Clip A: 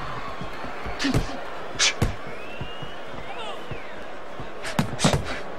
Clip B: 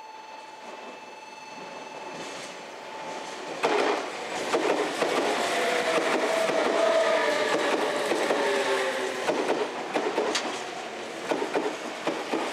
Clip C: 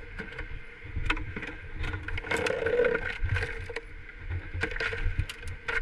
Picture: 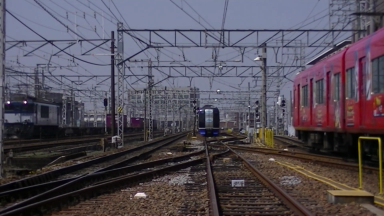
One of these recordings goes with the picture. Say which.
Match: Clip B